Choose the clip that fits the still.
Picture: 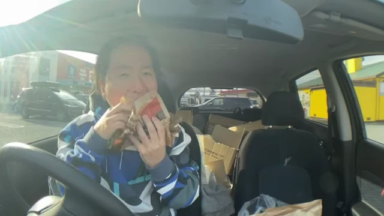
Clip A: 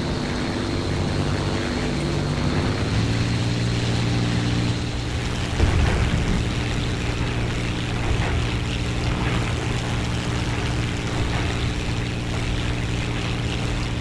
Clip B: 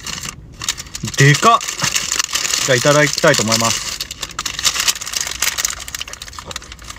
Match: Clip B